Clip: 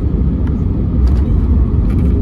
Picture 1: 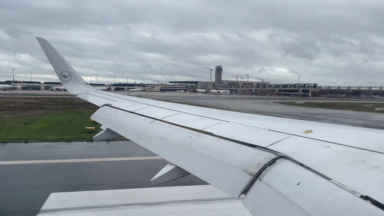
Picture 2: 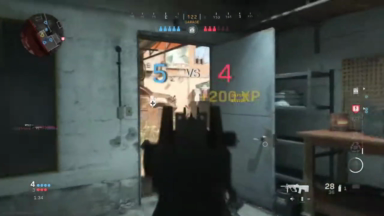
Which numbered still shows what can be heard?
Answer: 1